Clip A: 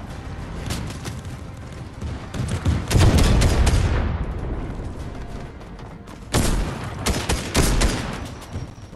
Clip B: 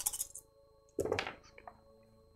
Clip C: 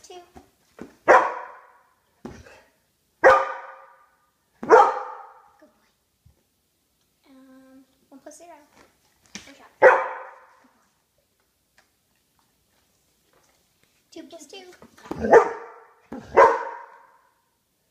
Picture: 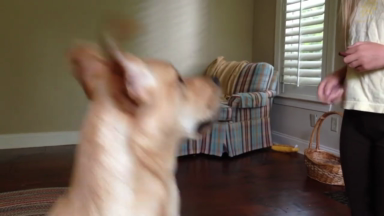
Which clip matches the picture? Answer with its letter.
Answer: C